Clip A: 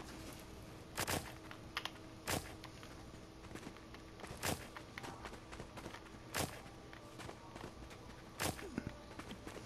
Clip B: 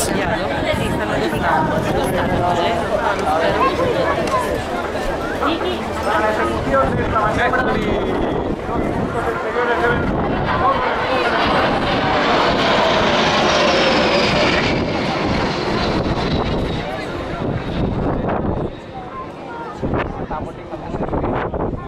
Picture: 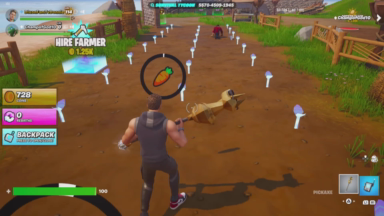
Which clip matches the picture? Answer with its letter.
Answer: A